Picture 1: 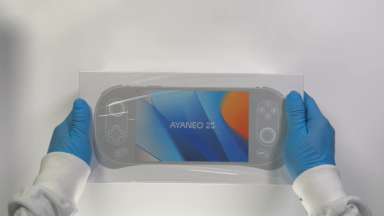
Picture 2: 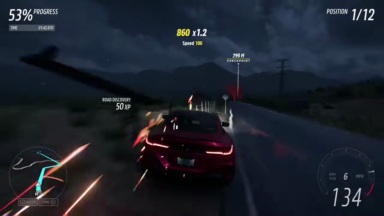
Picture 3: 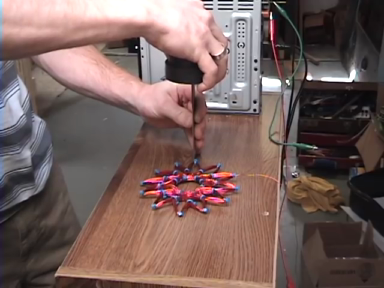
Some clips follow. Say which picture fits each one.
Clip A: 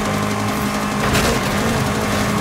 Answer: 2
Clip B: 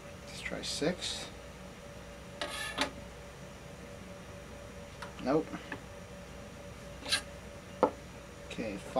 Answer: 3